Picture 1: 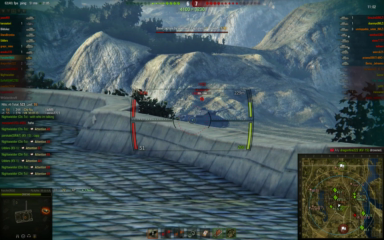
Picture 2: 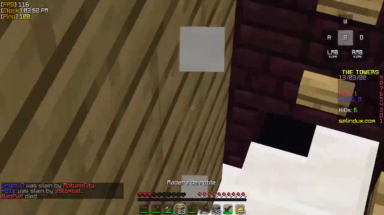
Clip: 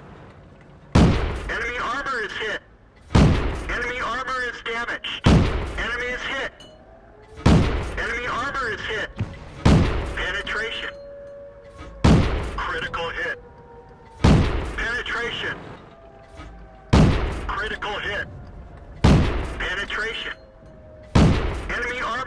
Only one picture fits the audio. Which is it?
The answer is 1